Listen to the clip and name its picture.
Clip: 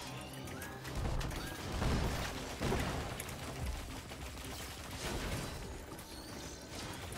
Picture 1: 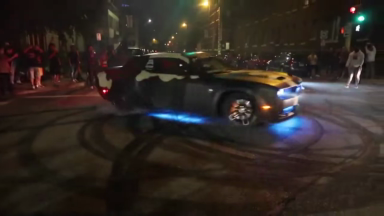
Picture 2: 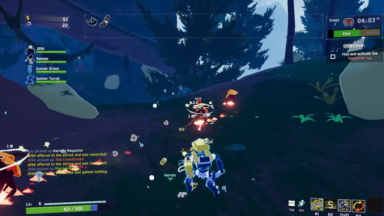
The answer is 2